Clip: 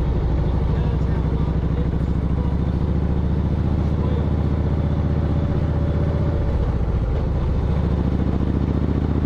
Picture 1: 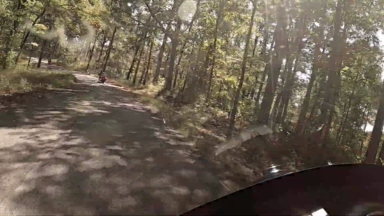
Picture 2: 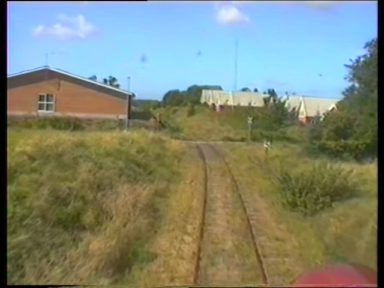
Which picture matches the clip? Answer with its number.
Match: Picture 1